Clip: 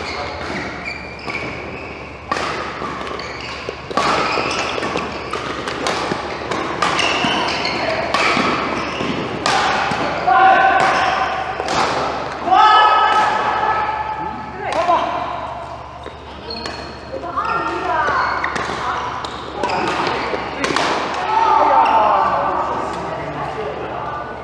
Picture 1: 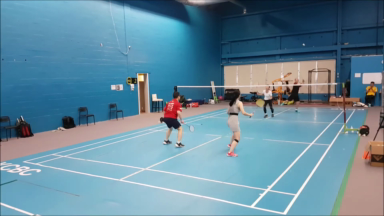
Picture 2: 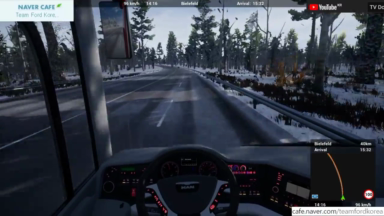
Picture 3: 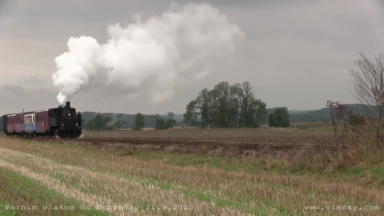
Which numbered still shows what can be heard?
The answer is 1